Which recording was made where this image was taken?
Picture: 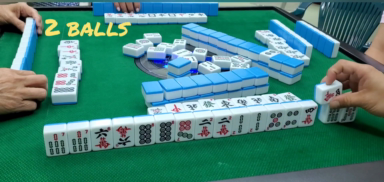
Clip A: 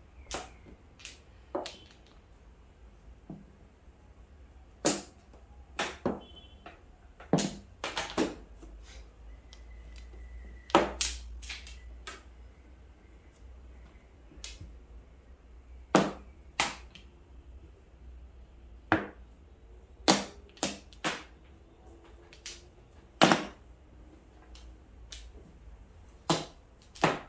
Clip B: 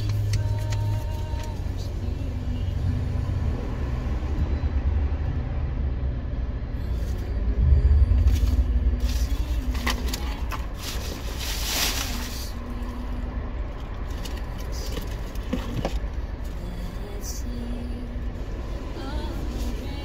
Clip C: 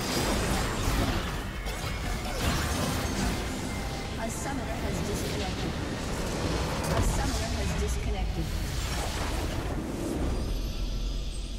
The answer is A